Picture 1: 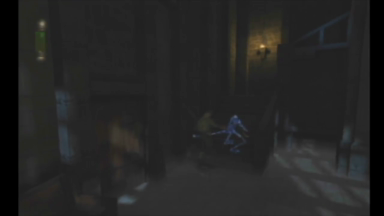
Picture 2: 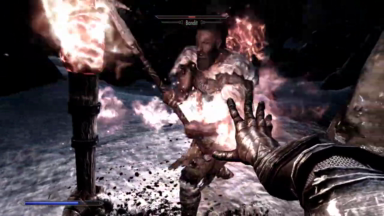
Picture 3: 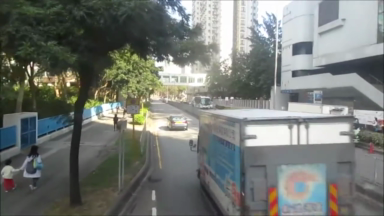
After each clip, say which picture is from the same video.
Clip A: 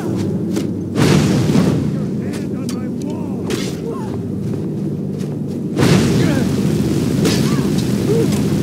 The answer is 2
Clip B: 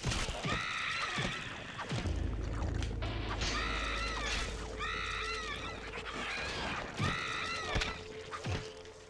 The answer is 1